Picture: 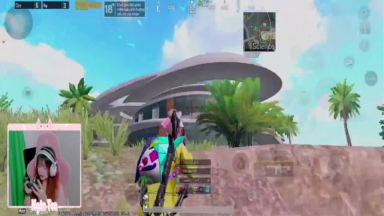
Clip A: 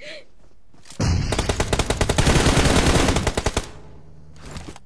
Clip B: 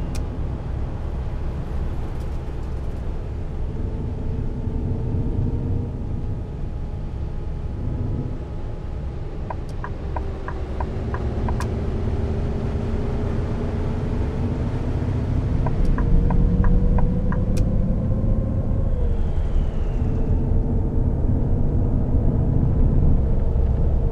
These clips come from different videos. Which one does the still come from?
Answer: A